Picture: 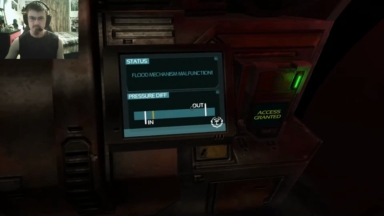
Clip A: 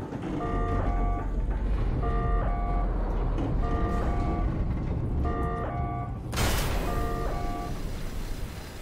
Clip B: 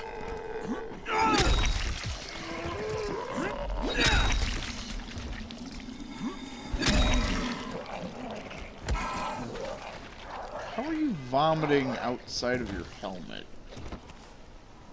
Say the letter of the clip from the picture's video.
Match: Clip A